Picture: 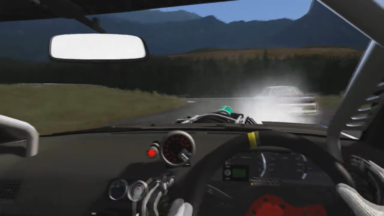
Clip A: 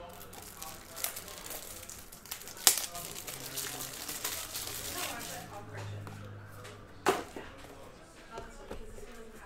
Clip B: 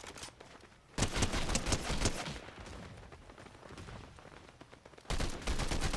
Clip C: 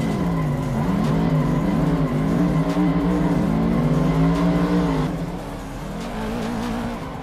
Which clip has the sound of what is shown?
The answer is C